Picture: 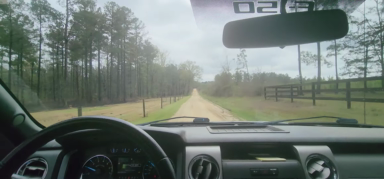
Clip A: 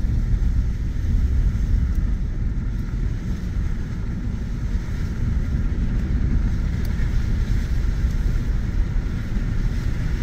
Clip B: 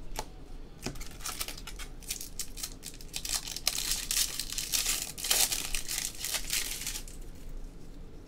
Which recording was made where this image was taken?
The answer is A